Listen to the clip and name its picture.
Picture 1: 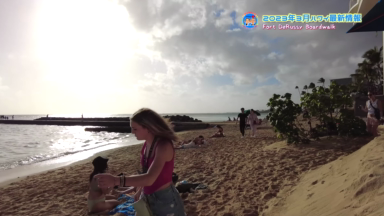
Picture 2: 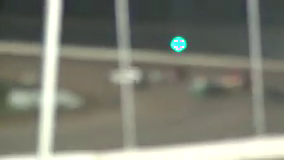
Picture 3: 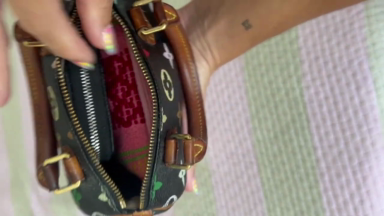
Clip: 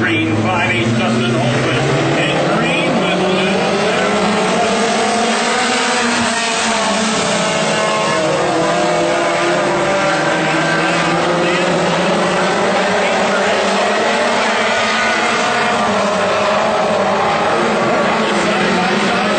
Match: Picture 2